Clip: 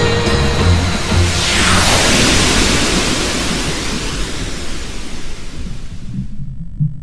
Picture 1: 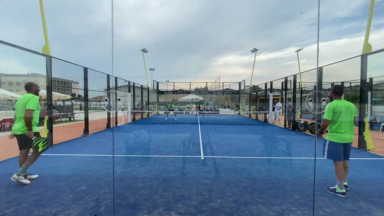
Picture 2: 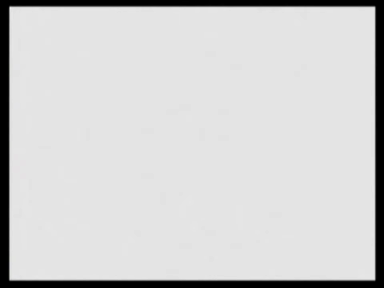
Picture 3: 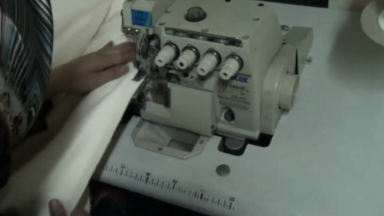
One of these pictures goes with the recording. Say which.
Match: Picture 2